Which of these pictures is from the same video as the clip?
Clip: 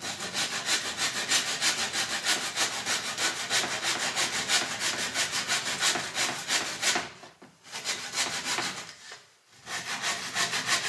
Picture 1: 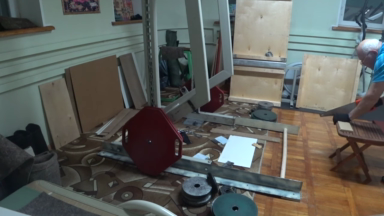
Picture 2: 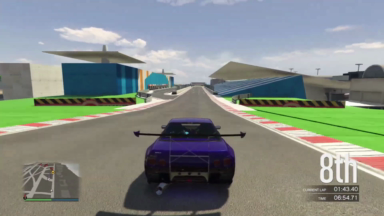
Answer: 1